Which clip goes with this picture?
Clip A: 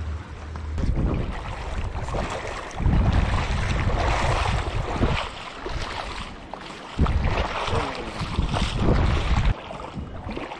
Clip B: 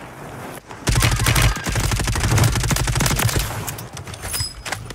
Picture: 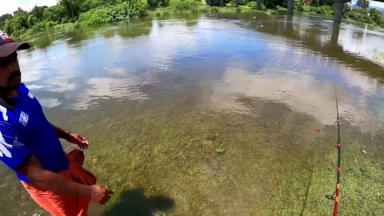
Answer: A